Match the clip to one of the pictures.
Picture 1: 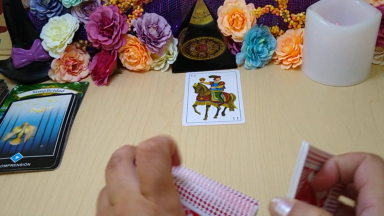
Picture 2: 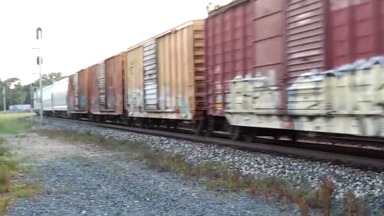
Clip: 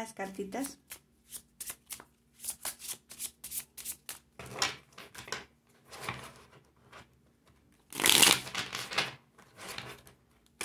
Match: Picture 1